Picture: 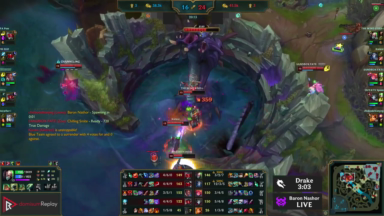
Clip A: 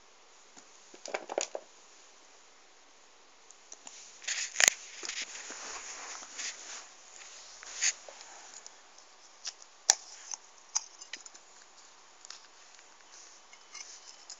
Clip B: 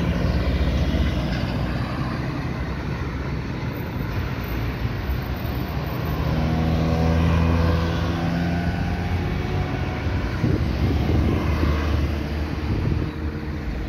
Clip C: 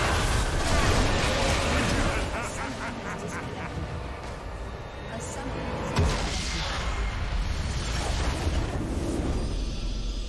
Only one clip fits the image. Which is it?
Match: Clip C